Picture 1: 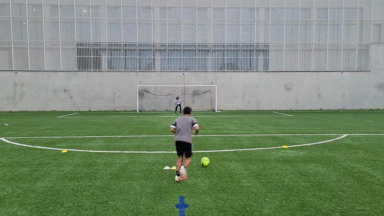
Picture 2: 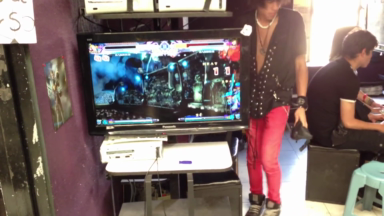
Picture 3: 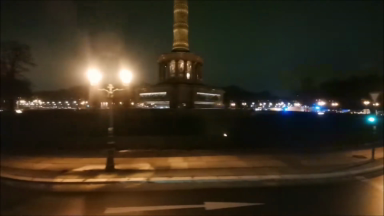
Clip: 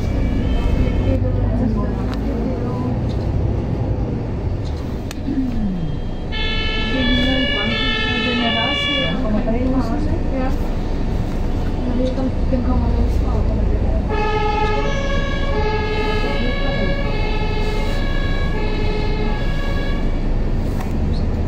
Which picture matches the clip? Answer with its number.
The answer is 3